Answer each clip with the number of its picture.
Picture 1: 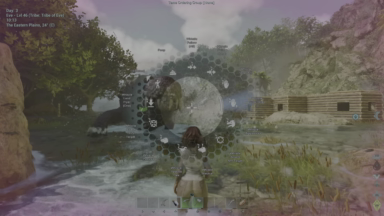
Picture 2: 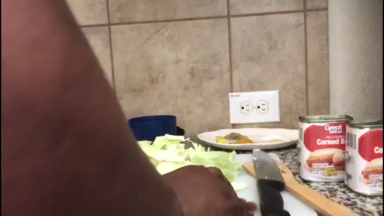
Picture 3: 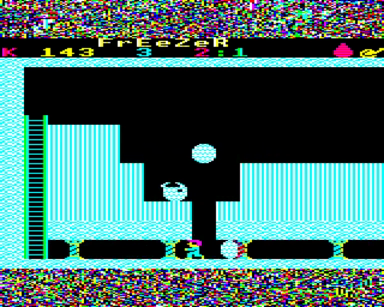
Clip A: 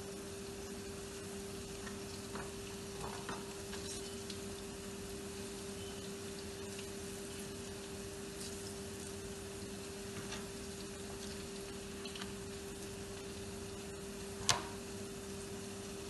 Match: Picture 2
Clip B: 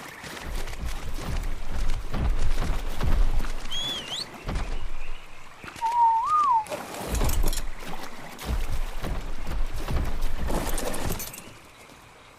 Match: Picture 1